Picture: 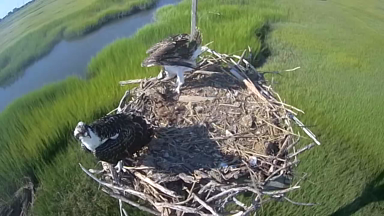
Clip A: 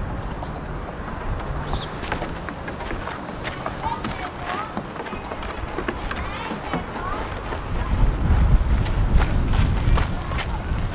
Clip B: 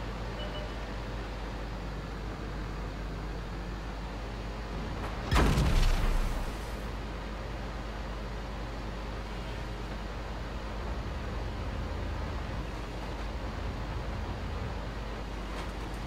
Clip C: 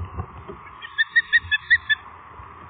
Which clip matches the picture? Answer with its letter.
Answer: C